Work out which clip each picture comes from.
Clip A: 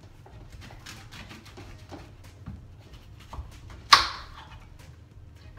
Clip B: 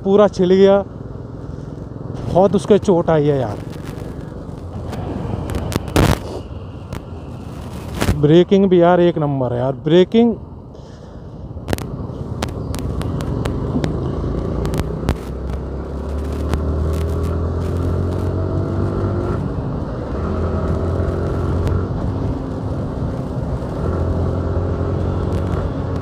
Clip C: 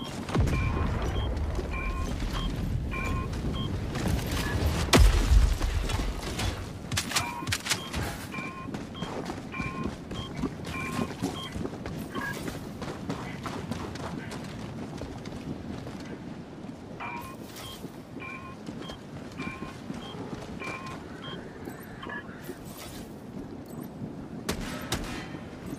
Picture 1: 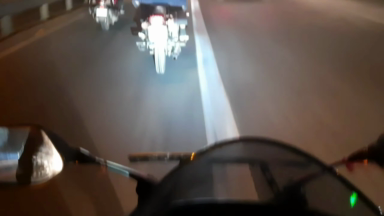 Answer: B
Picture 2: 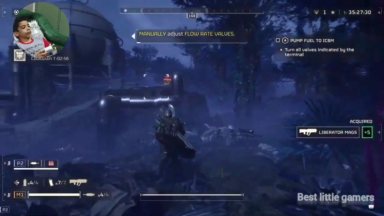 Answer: C